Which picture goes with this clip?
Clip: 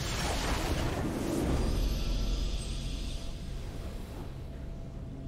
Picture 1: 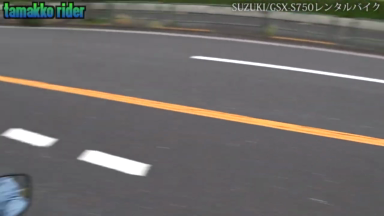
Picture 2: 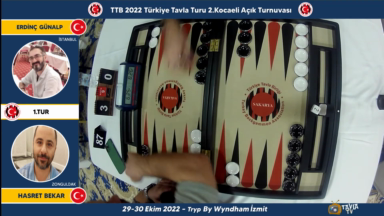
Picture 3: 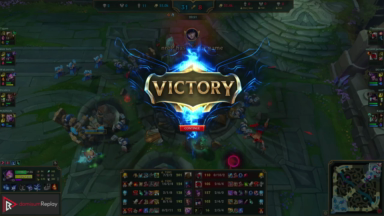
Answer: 3